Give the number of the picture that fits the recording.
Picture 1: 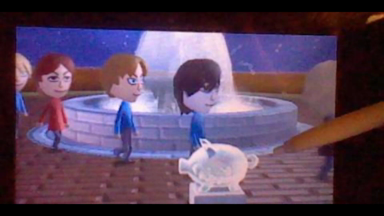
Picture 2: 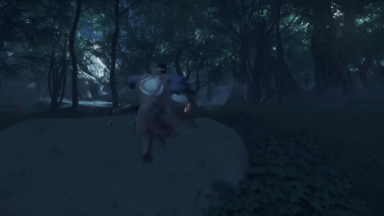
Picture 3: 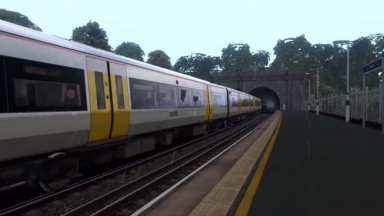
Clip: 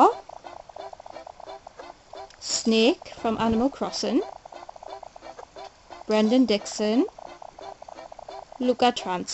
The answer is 1